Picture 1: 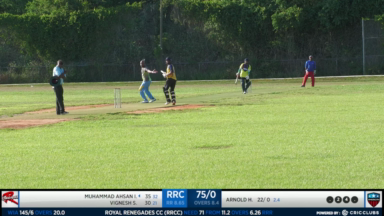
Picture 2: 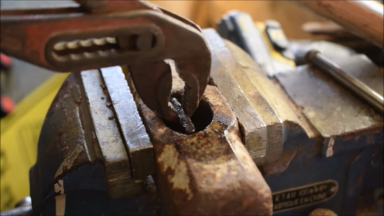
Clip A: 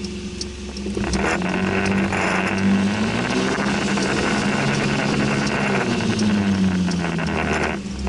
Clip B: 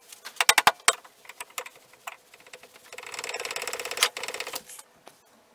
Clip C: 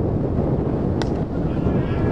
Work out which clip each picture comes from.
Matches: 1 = C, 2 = B